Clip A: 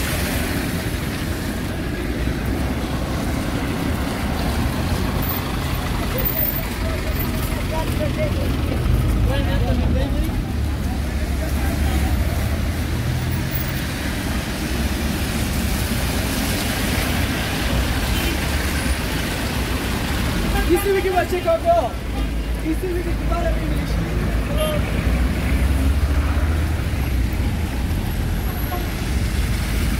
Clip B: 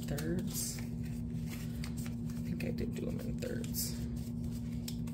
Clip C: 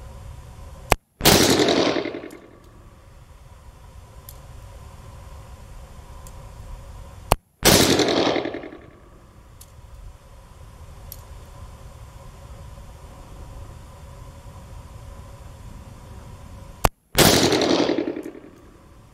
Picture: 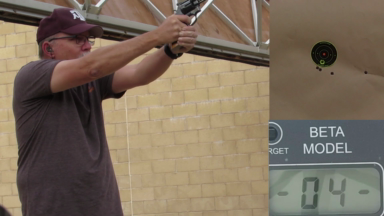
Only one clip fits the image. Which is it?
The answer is C